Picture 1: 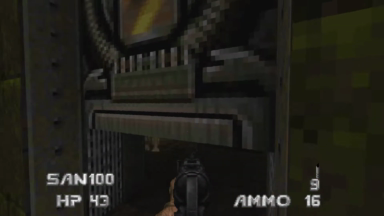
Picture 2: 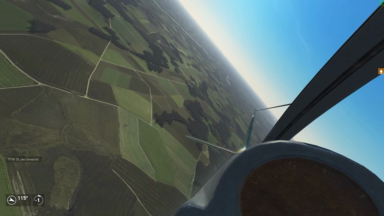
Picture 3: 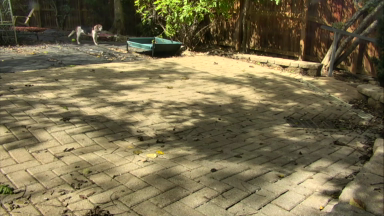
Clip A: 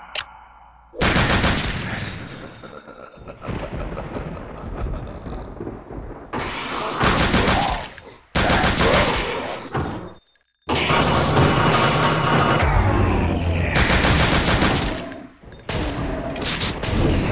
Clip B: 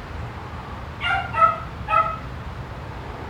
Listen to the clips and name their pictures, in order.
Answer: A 1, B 3